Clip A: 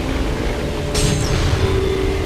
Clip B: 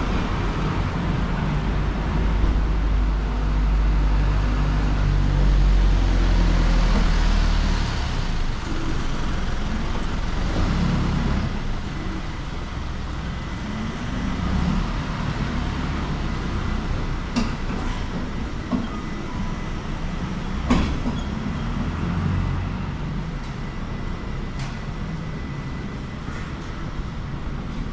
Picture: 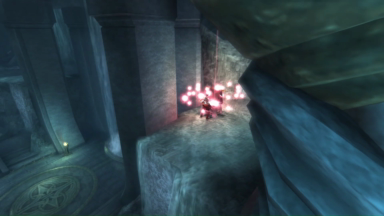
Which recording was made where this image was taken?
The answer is A